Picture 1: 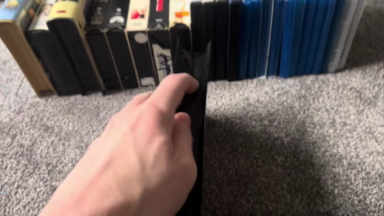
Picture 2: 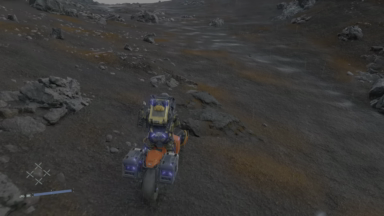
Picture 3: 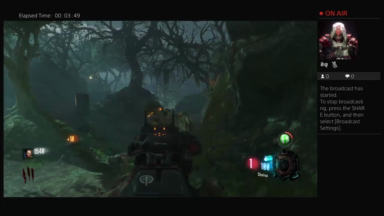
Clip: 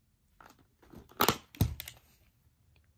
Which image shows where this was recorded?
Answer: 1